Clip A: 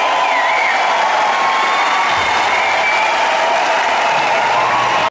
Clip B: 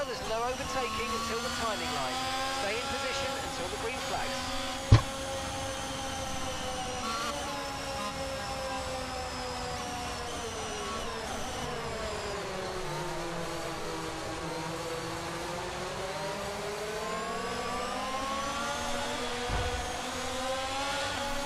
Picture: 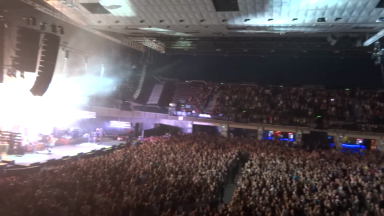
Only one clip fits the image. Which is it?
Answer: A